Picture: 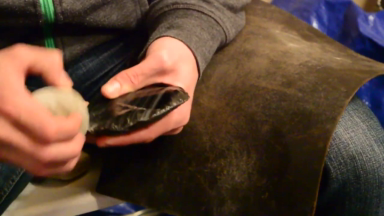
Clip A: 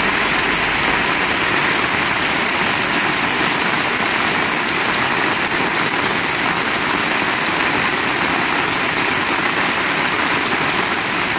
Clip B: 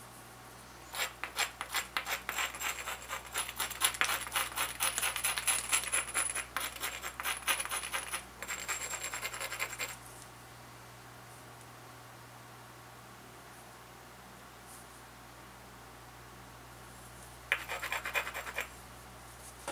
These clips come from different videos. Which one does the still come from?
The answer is B